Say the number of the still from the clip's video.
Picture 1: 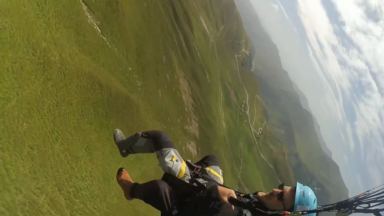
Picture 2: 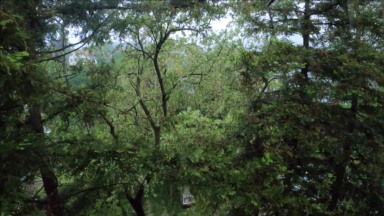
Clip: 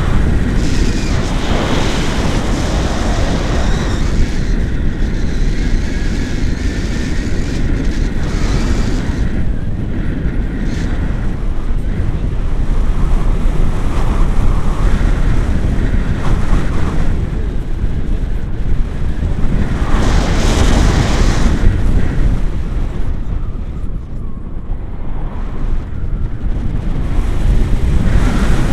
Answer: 1